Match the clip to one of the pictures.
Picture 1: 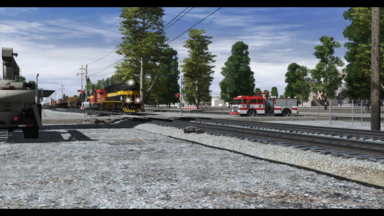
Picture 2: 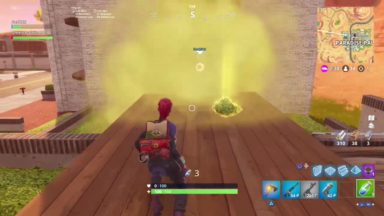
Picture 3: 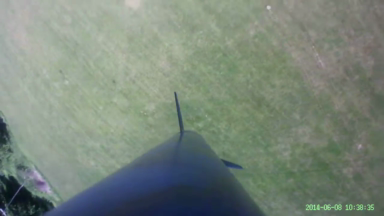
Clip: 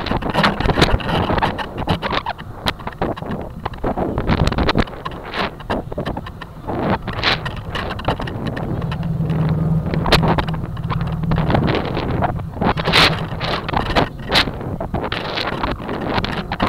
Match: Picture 3